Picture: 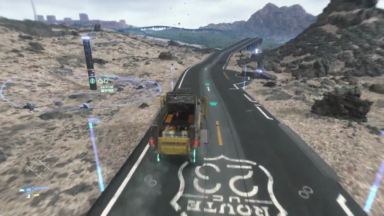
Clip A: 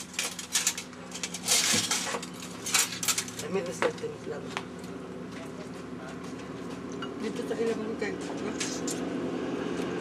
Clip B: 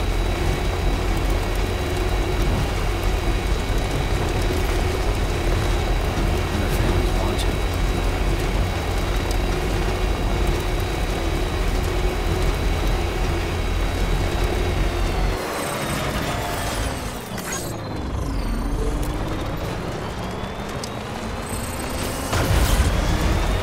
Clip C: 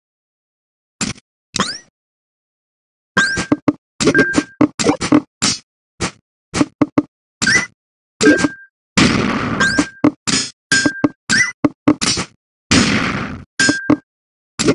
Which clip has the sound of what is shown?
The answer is B